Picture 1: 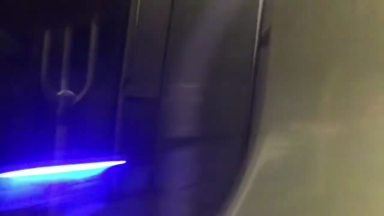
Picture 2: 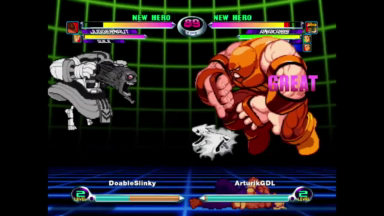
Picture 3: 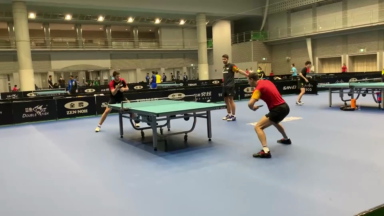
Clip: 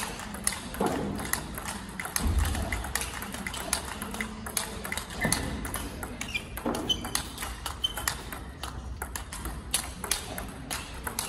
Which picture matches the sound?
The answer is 3